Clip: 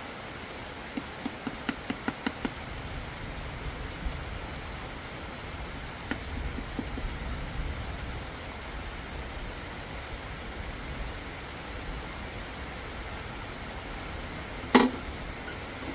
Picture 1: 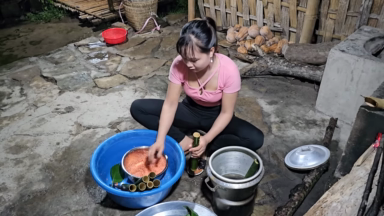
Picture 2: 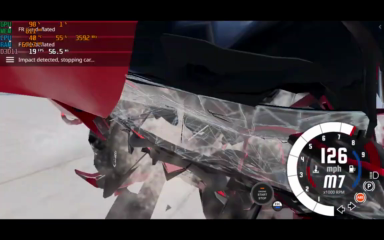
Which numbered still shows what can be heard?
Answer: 1